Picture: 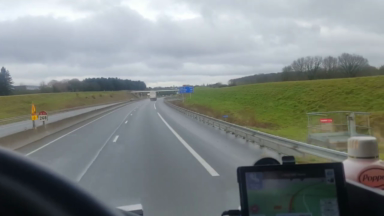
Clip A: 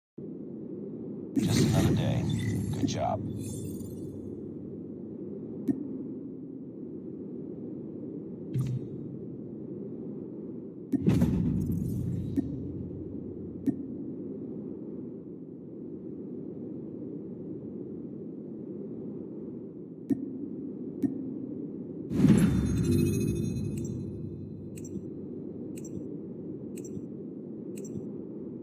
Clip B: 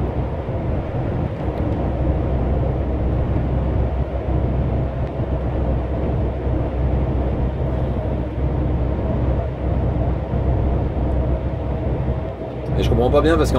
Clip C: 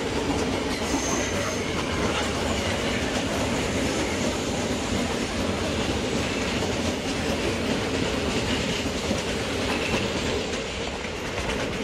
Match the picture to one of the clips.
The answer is B